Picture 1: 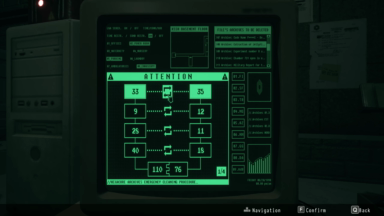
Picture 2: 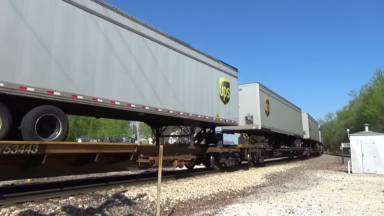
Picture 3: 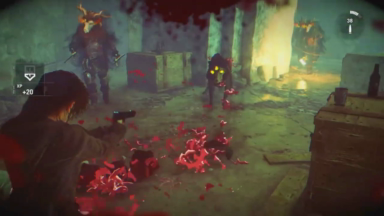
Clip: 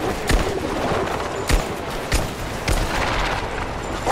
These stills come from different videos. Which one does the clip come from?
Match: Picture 3